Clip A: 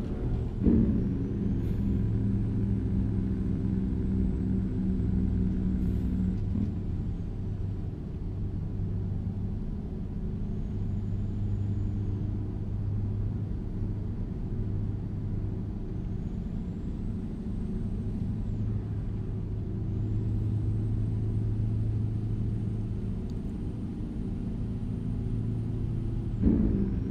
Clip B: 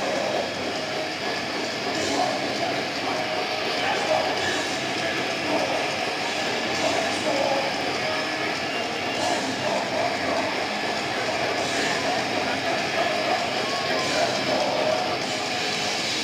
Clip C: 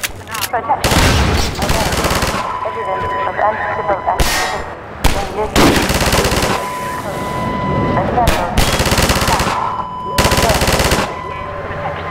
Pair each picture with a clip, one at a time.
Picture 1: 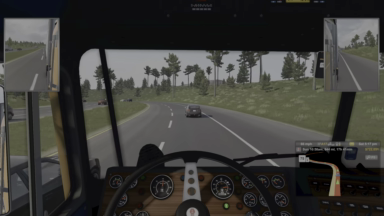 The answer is A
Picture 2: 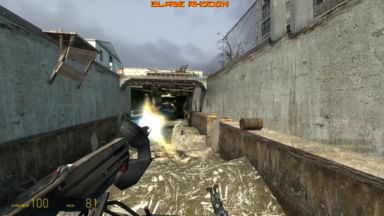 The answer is C